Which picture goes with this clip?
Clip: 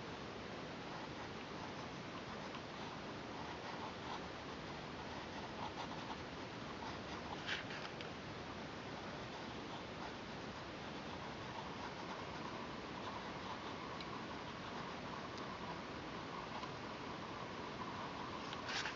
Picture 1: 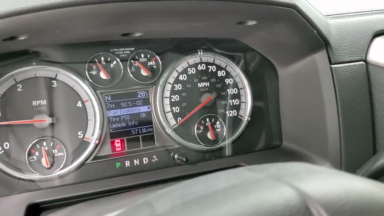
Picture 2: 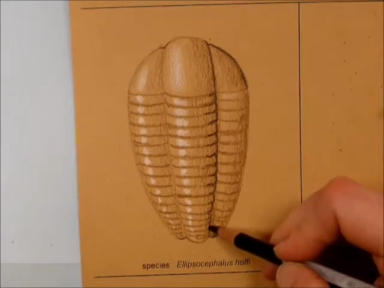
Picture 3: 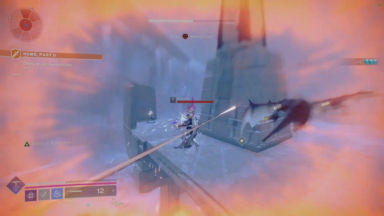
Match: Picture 2